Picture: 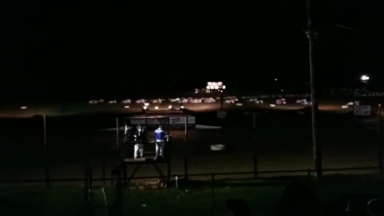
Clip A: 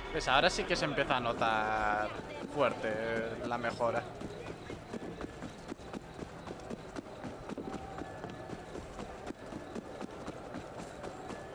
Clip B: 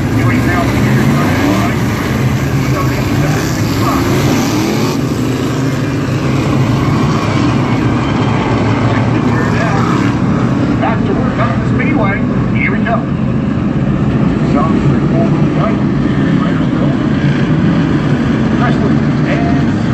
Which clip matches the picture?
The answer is B